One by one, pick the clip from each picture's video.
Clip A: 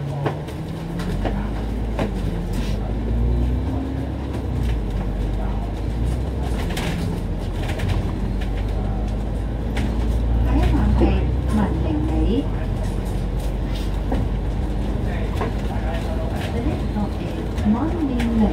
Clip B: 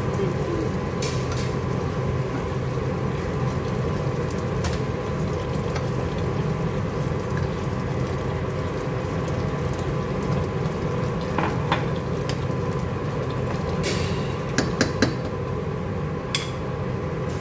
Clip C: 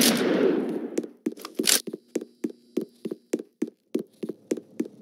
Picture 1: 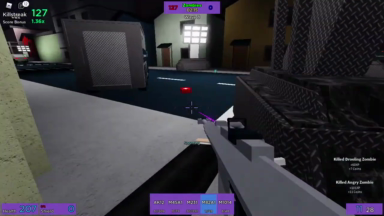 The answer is C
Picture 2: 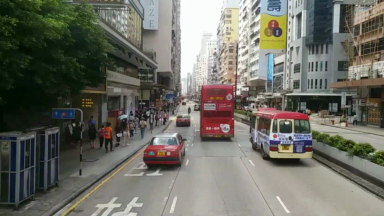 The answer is A